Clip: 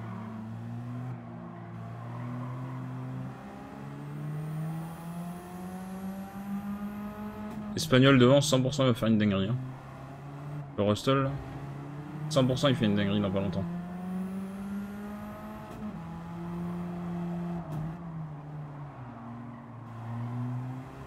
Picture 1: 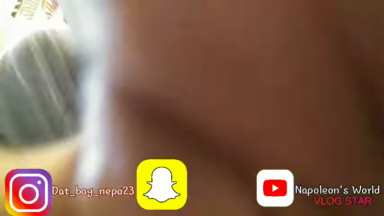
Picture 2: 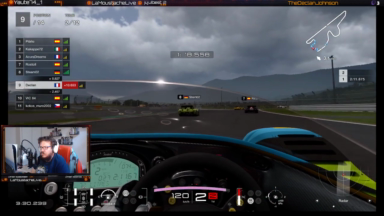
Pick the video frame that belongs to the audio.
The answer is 2